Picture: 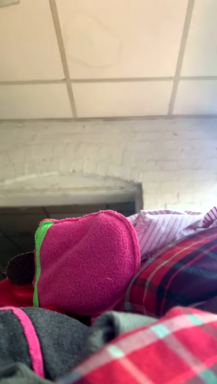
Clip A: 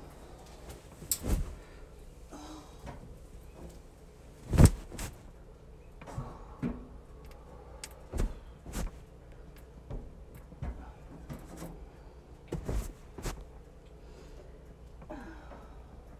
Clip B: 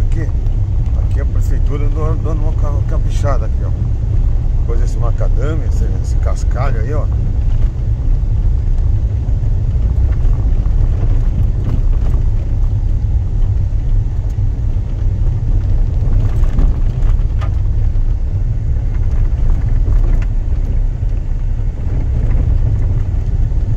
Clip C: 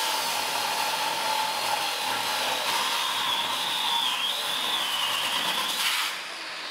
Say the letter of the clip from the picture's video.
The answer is A